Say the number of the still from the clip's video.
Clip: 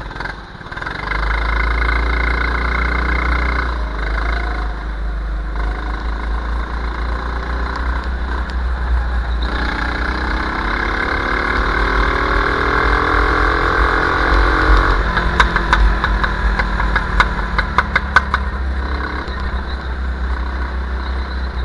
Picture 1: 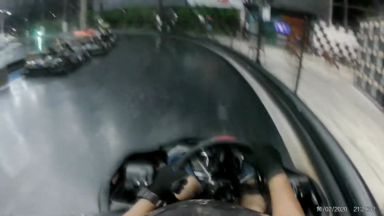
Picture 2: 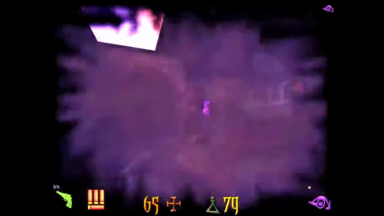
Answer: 1